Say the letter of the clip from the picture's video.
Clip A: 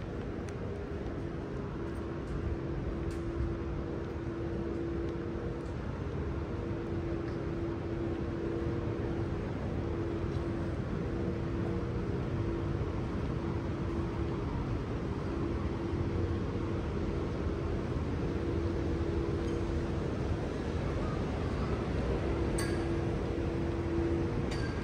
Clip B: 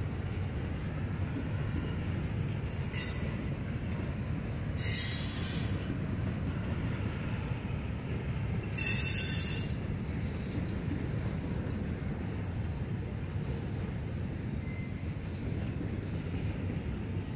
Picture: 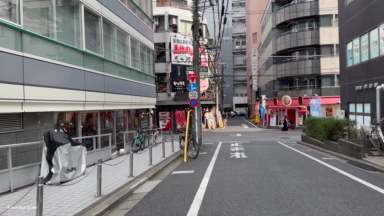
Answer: A